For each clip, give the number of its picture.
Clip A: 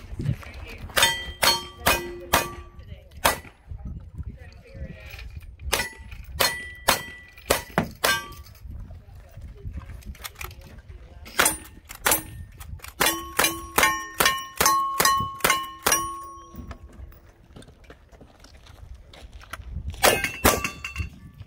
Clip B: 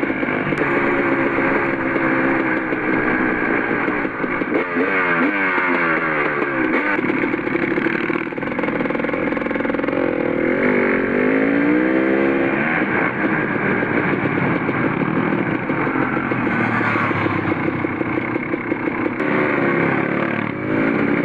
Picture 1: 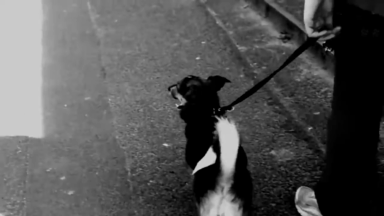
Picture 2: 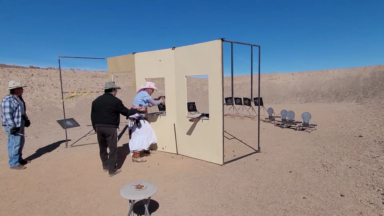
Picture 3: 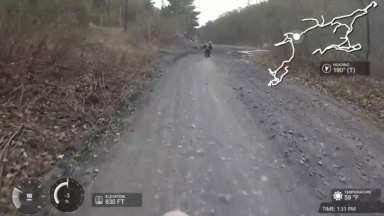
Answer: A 2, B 3